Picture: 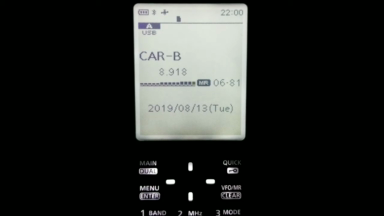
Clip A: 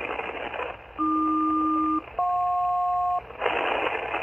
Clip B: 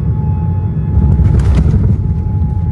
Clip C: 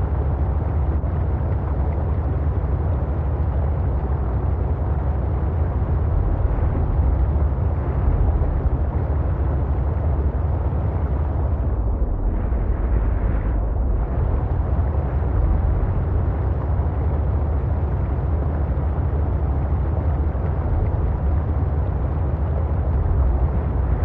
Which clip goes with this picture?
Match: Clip A